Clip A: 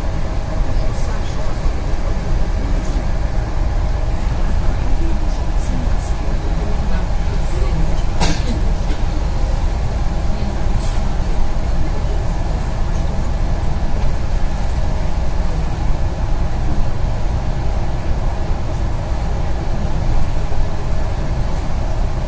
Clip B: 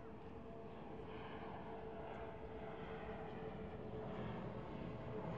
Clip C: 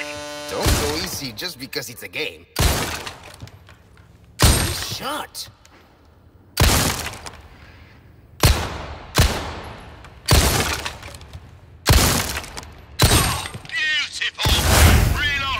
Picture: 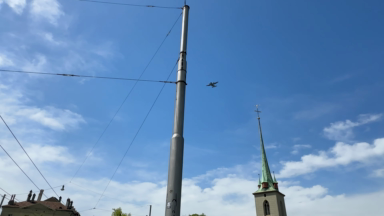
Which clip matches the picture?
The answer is B